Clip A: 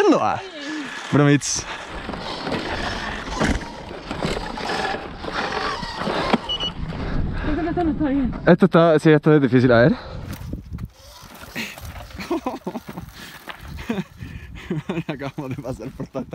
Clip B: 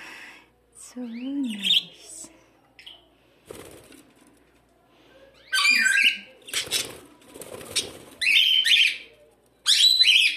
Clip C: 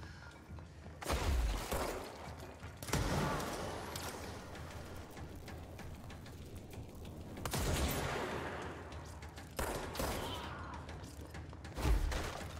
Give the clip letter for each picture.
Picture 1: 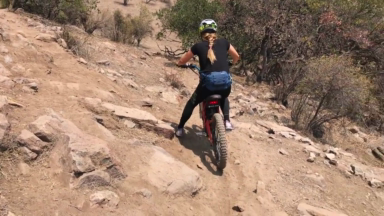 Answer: A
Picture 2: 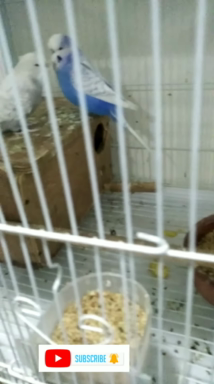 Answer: B